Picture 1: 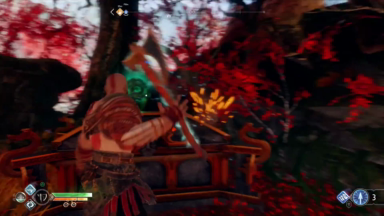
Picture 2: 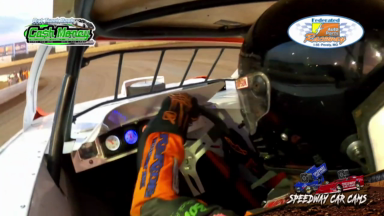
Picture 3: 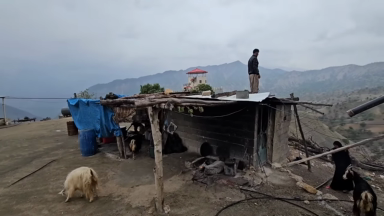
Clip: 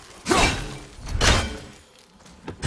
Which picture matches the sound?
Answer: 1